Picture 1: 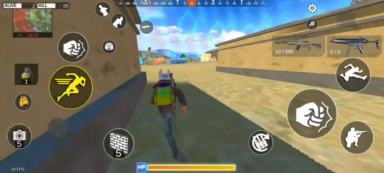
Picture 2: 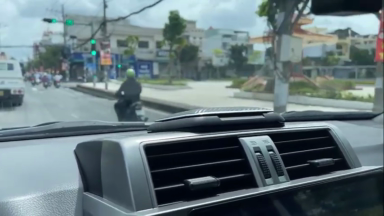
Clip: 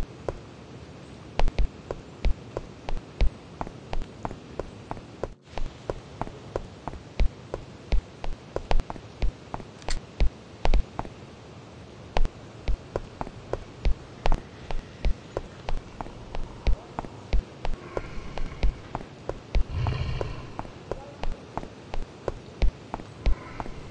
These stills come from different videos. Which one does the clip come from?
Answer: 1